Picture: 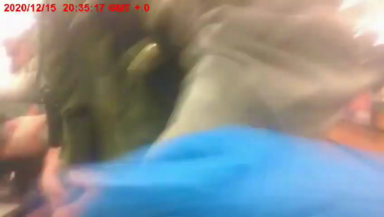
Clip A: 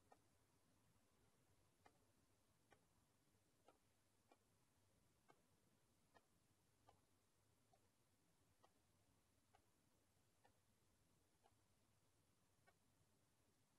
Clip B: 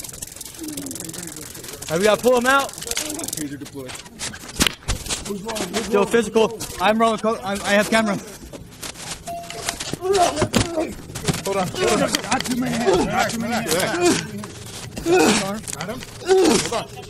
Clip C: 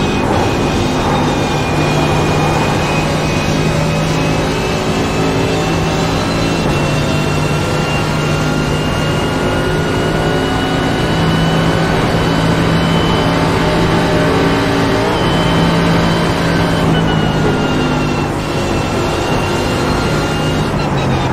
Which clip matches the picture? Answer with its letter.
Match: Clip B